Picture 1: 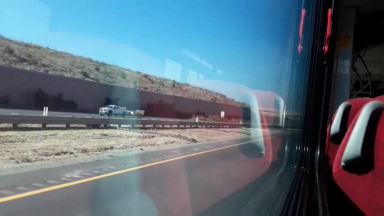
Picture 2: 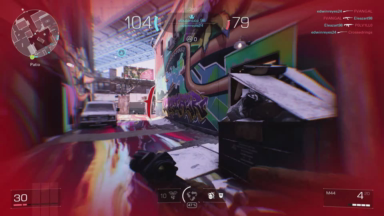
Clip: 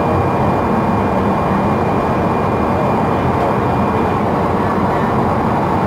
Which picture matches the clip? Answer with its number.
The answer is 1